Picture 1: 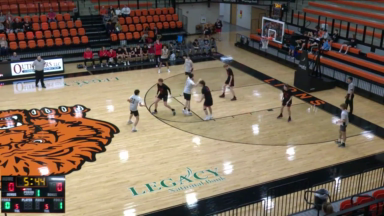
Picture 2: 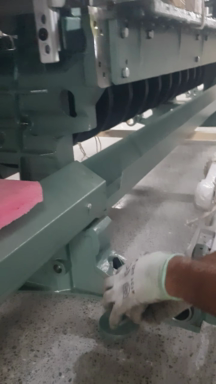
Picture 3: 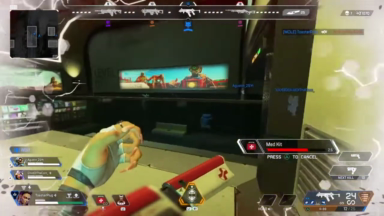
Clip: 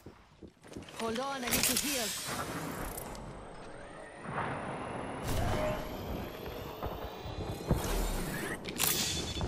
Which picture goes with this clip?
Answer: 3